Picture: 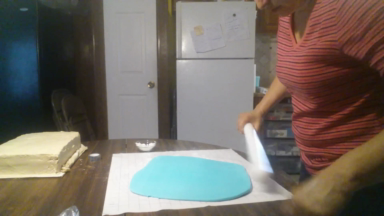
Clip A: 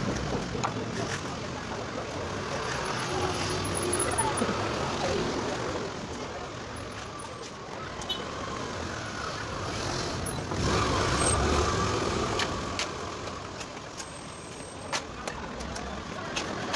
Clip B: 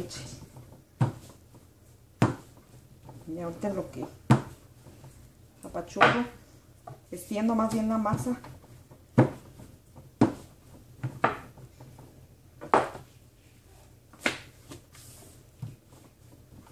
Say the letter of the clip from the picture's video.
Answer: B